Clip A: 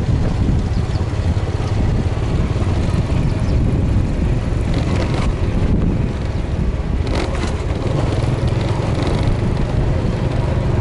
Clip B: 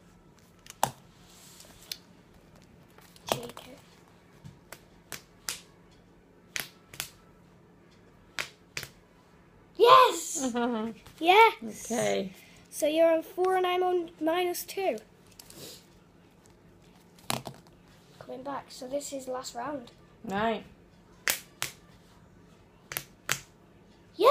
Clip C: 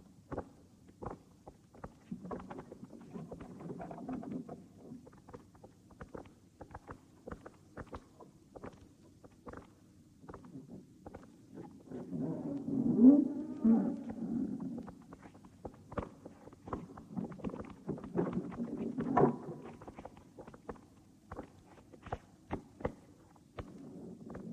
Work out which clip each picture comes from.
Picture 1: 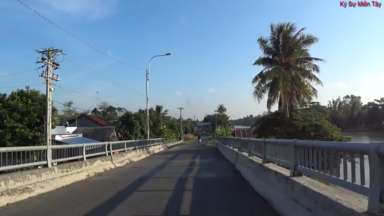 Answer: A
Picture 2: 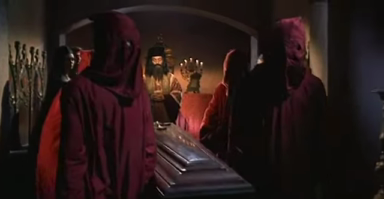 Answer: C